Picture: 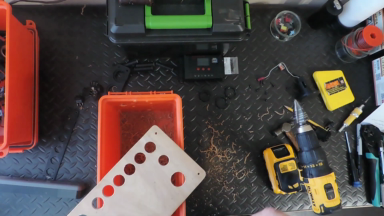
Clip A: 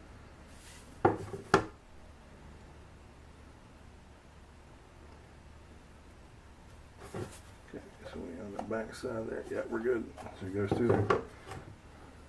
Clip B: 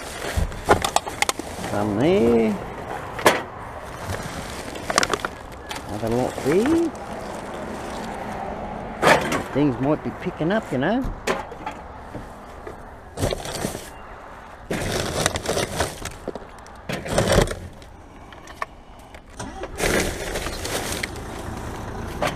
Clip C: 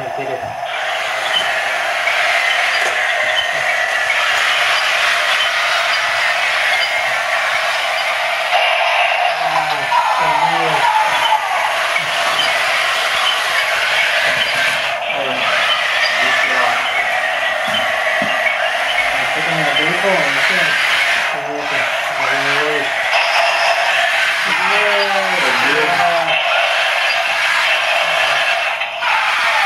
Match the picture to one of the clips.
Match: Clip A